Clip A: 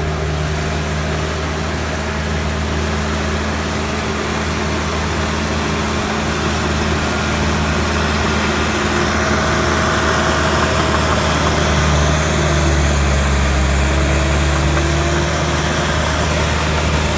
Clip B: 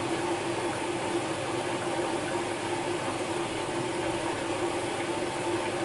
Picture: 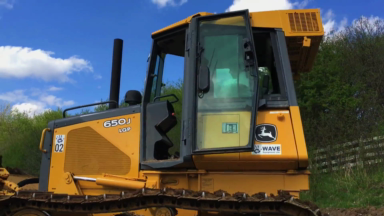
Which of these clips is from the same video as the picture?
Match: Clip A